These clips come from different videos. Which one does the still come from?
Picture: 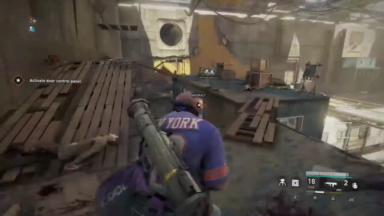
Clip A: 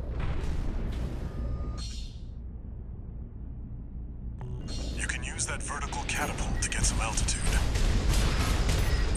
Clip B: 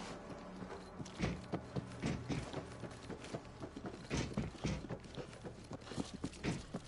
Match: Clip B